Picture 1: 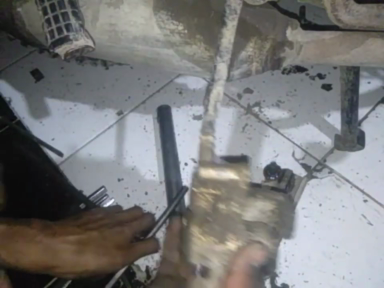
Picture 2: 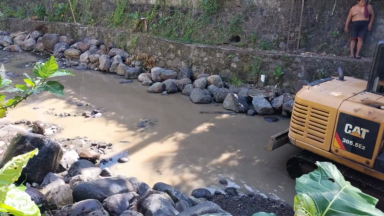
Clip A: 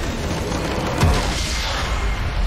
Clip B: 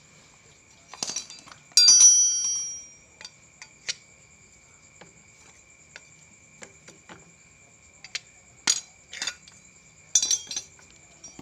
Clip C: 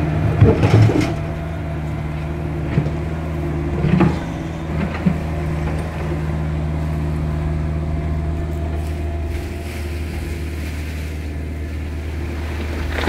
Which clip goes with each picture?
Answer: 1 B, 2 C